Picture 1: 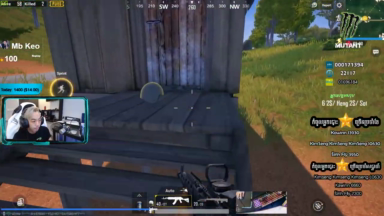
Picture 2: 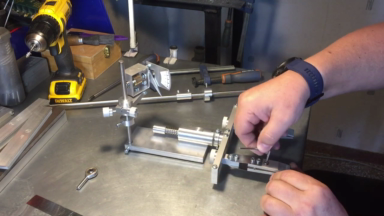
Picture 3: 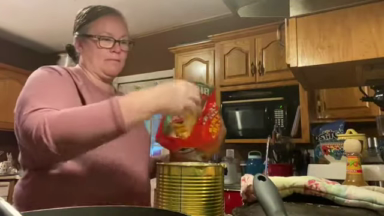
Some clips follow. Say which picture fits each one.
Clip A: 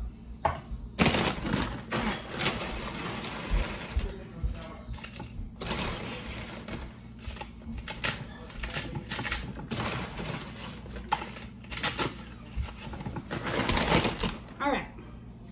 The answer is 3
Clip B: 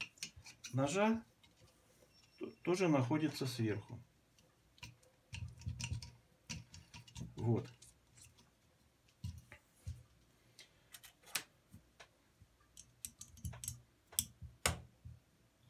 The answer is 2